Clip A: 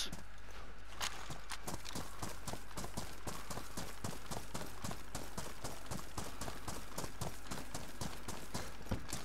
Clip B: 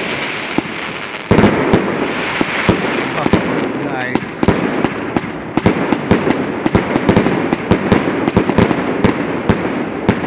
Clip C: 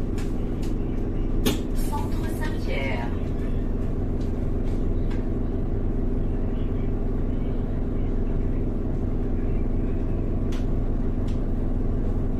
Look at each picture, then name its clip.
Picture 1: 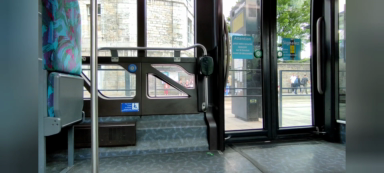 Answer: C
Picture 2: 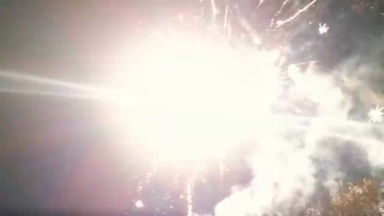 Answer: B